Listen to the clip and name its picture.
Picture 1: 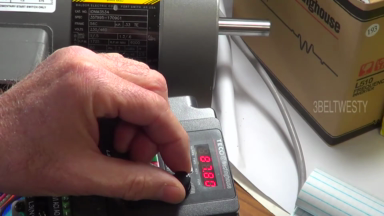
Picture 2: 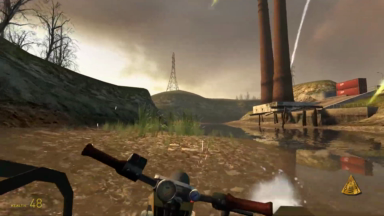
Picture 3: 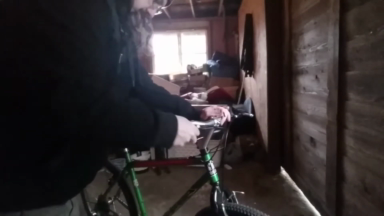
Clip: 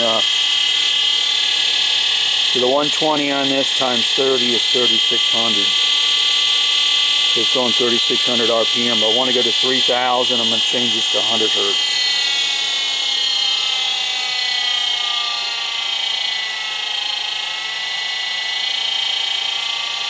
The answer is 1